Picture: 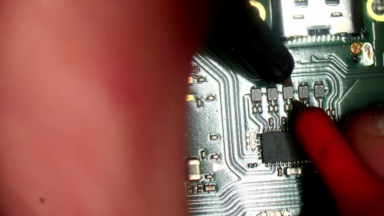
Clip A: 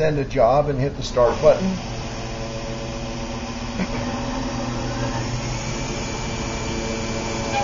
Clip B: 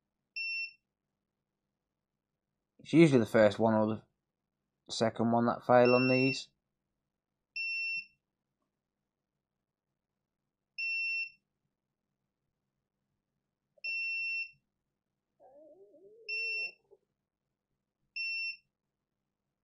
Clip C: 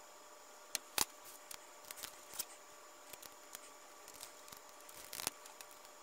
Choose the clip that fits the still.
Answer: B